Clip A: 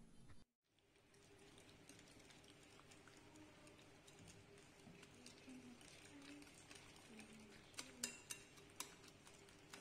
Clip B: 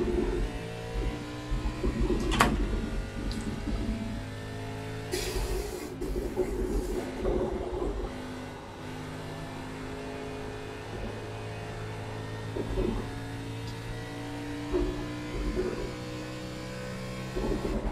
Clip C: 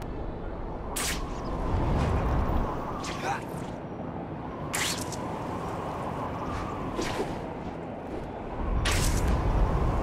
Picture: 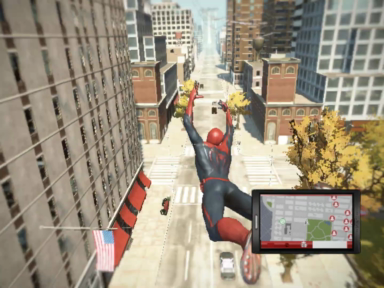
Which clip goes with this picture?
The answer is C